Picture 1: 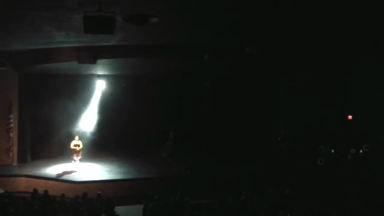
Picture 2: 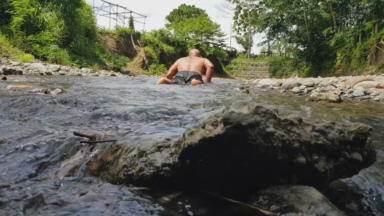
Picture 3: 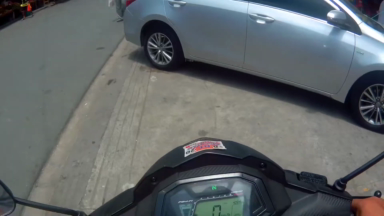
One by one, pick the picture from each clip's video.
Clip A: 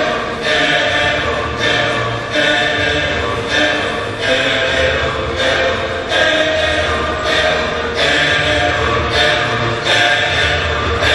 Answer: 1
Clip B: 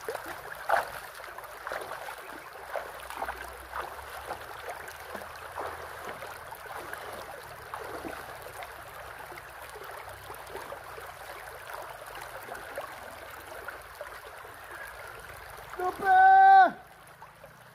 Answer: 2